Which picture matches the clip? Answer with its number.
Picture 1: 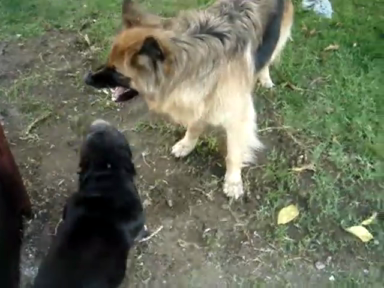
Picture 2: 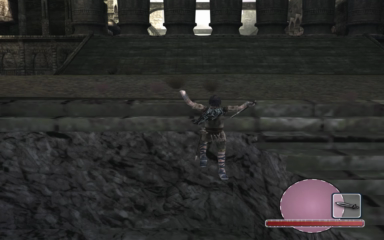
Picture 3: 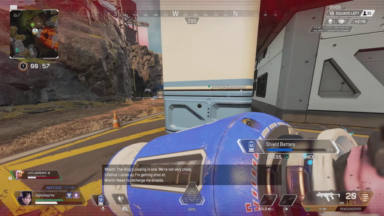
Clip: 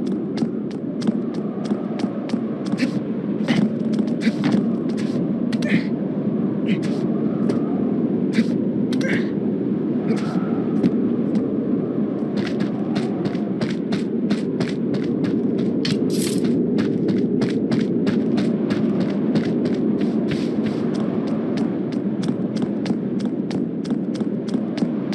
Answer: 2